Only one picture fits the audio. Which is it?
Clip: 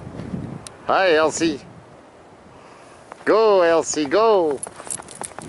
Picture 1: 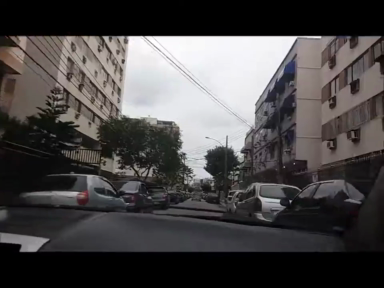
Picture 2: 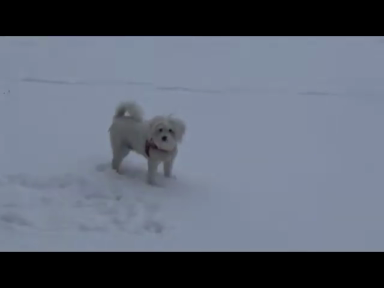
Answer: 2